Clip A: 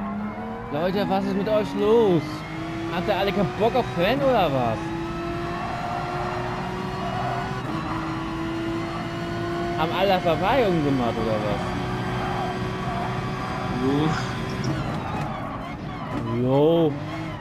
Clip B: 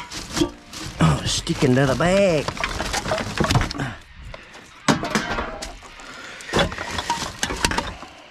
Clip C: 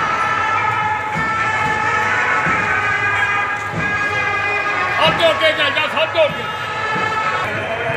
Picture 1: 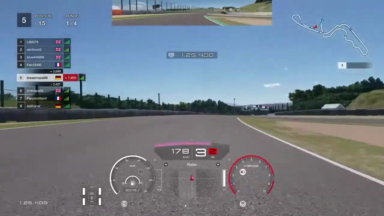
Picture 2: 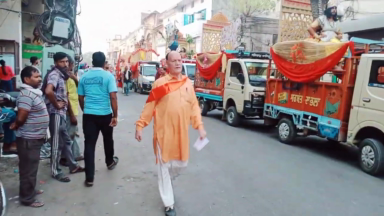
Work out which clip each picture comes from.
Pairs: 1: A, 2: C